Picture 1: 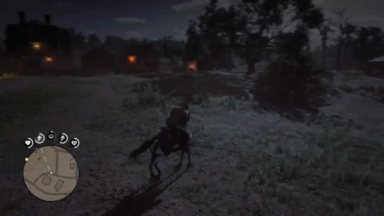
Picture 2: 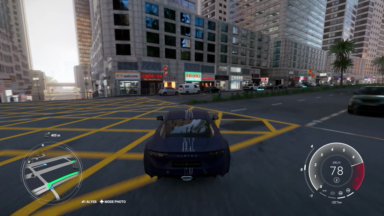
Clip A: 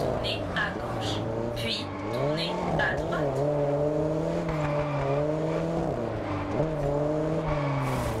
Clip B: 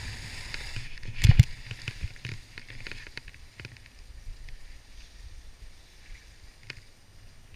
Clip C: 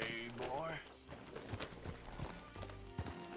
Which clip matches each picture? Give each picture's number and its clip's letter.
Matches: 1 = C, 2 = A